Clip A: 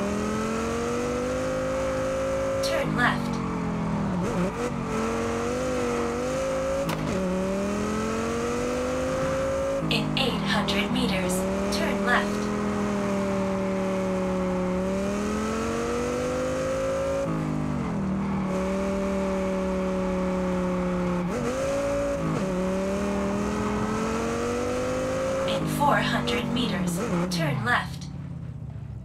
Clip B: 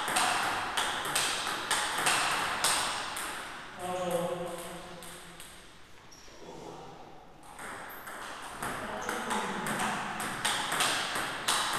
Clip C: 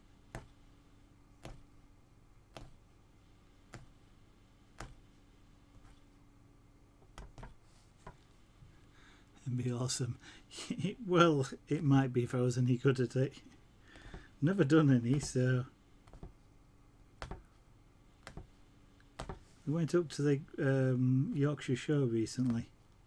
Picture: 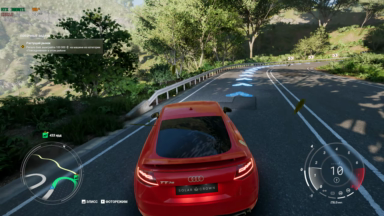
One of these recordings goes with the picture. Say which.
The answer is A